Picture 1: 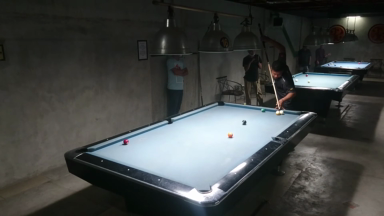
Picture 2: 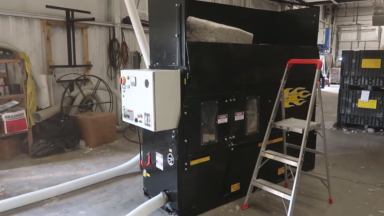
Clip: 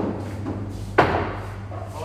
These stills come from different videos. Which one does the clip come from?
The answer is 1